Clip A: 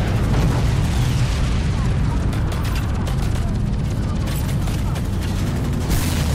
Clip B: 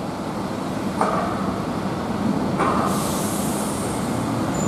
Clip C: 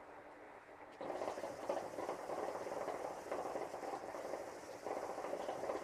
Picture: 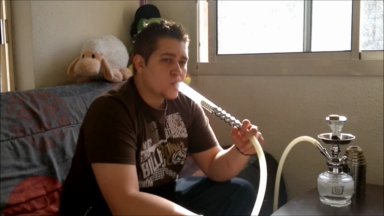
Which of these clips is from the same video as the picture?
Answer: C